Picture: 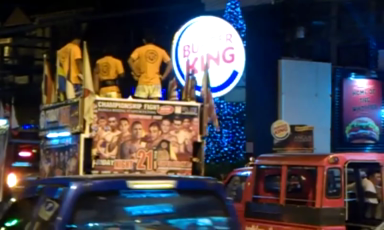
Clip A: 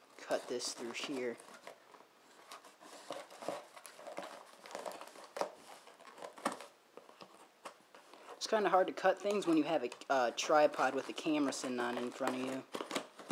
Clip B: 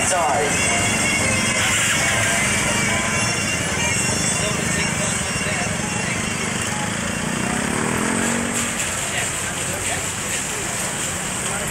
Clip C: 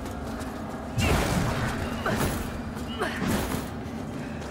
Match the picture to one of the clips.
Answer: B